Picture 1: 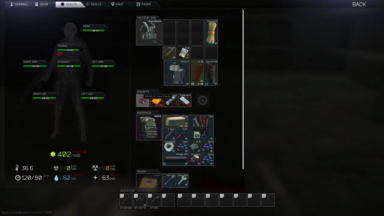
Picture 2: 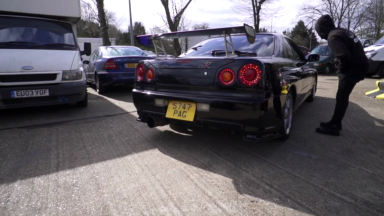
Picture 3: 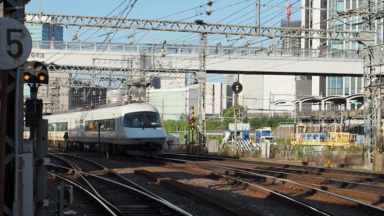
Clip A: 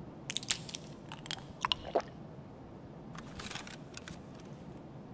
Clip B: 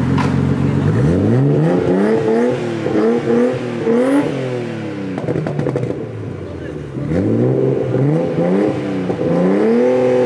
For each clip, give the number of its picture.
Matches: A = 1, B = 2